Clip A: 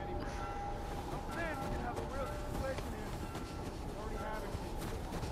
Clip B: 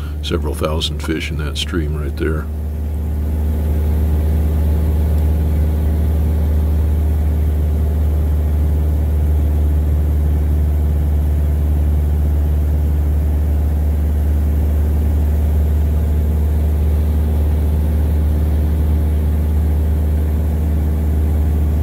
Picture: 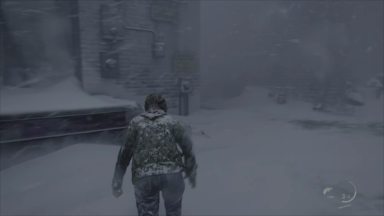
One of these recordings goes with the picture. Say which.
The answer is A